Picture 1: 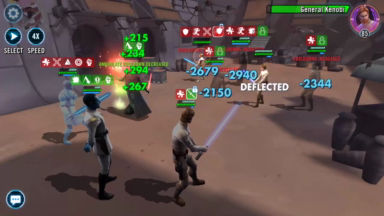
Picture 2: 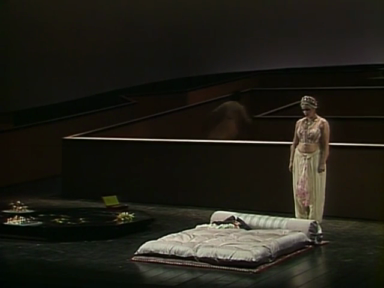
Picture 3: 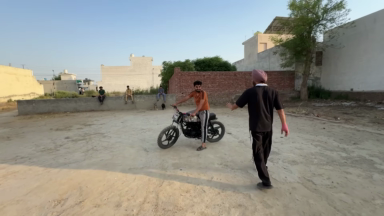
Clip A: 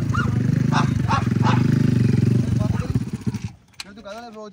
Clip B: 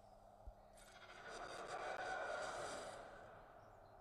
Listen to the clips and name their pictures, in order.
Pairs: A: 3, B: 1